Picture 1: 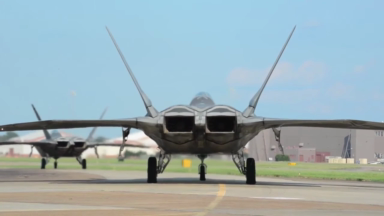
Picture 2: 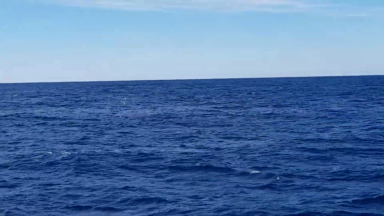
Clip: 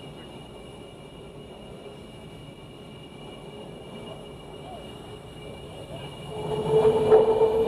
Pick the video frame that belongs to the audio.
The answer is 1